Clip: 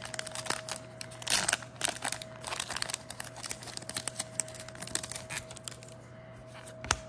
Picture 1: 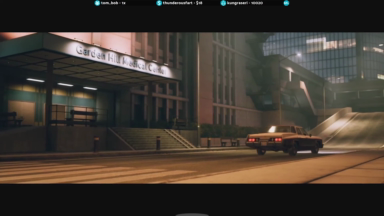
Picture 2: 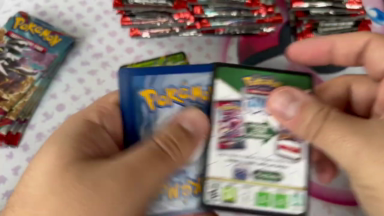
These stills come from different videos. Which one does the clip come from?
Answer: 2